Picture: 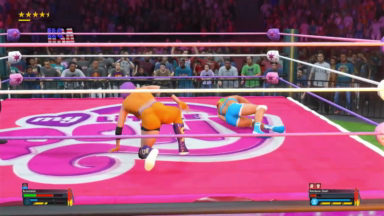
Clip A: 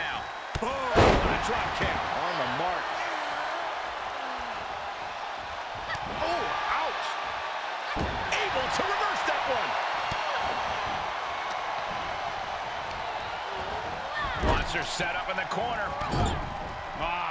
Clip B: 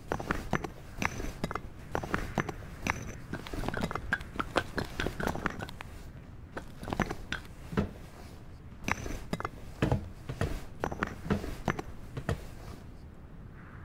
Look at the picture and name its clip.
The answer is A